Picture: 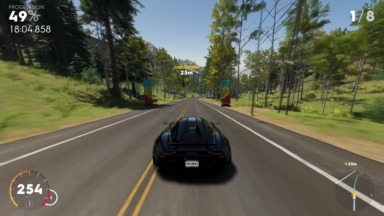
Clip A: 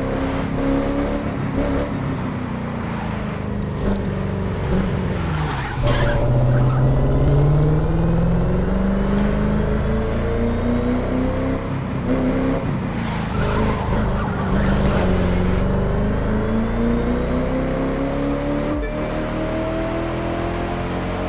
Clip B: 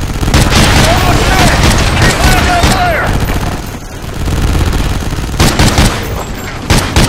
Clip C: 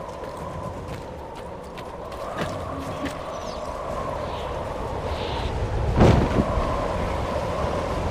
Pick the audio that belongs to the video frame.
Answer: A